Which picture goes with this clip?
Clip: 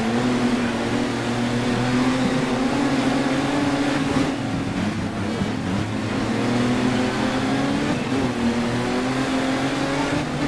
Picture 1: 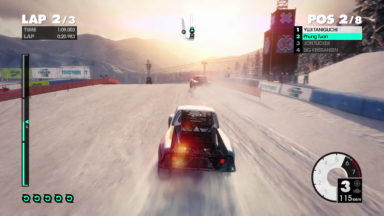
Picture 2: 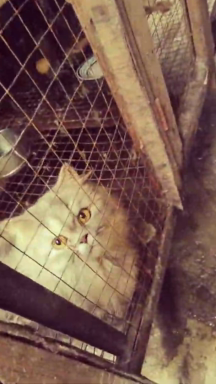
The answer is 1